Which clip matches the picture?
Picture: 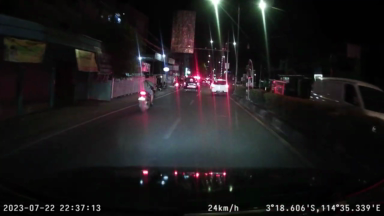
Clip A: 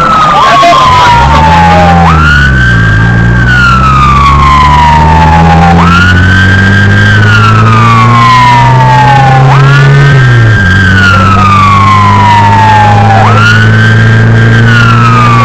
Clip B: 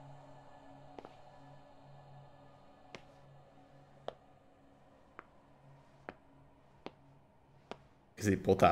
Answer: A